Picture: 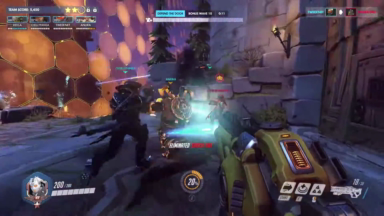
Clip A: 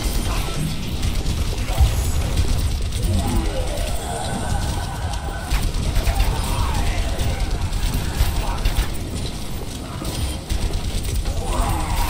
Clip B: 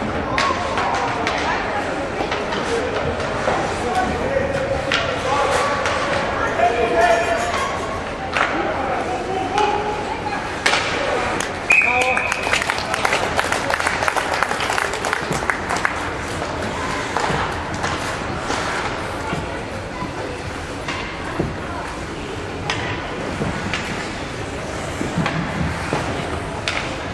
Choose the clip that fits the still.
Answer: A